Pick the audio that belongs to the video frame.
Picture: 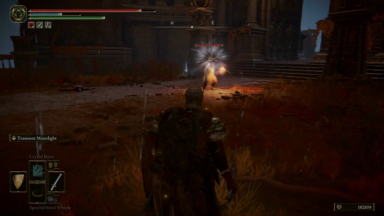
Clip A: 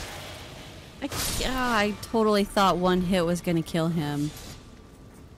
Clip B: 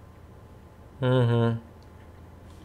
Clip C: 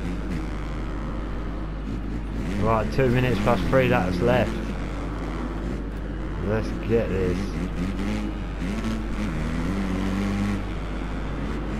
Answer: A